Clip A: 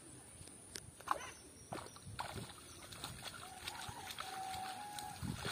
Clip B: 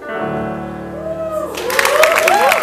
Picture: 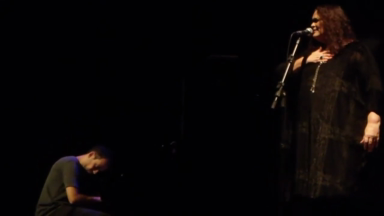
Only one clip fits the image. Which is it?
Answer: B